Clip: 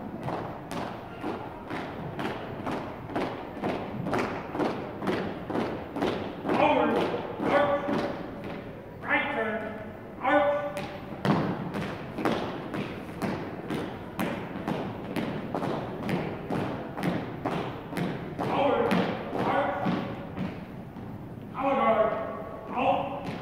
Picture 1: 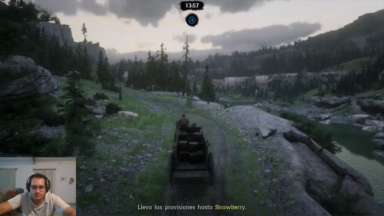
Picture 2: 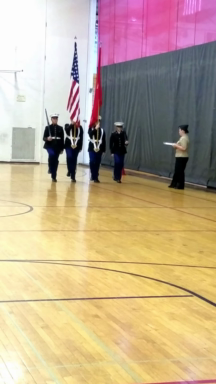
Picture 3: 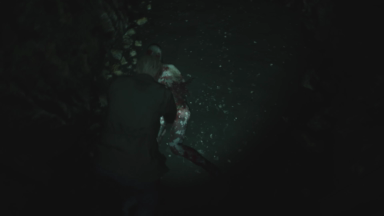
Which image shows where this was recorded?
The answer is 2